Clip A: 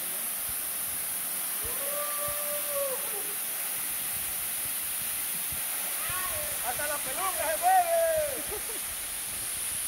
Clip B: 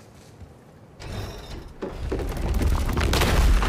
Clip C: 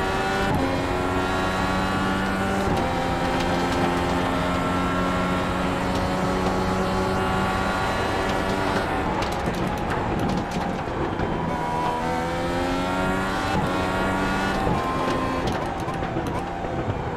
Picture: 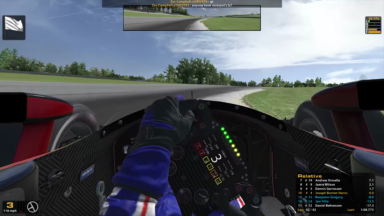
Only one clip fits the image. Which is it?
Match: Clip C